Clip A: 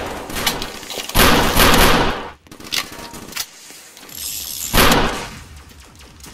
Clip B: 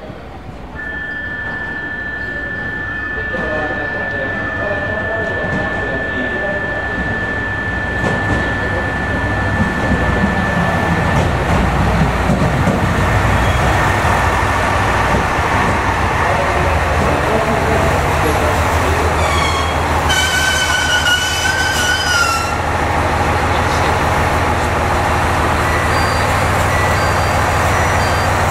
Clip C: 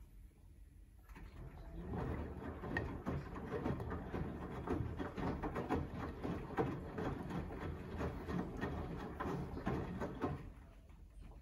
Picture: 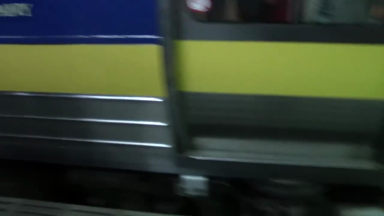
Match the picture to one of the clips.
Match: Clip B